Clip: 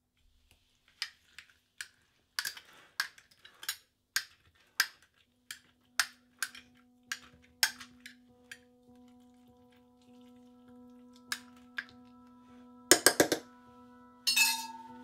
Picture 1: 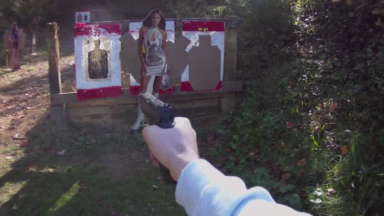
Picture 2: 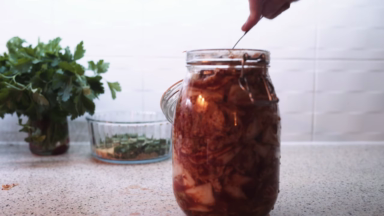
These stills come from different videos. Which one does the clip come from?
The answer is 2